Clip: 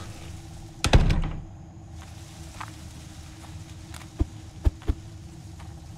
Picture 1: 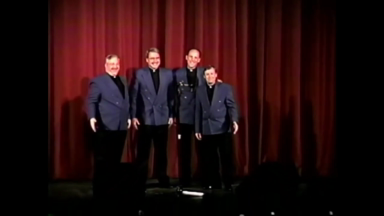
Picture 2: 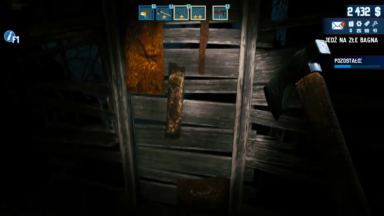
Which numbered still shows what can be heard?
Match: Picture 2